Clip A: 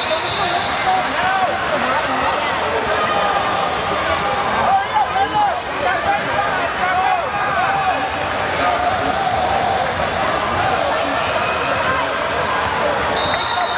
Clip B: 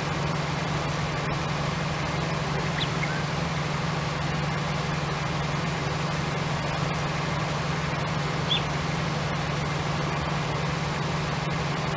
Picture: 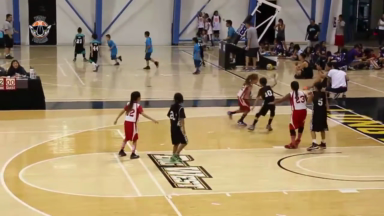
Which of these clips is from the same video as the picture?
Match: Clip A